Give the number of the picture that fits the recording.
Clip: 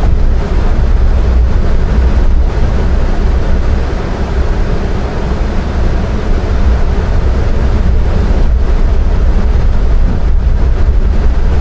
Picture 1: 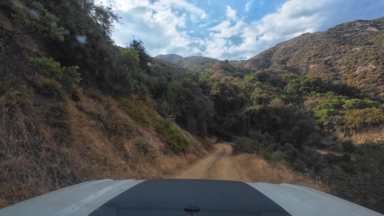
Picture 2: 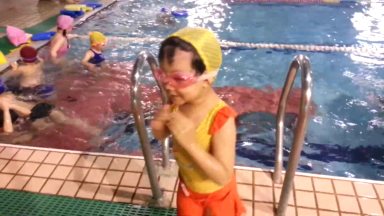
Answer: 1